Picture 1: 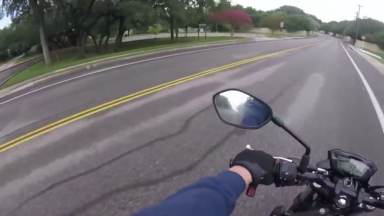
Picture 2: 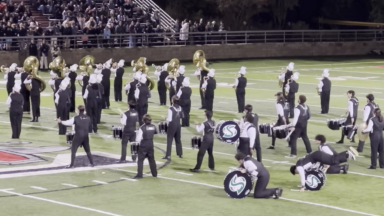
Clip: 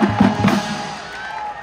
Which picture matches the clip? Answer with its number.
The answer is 2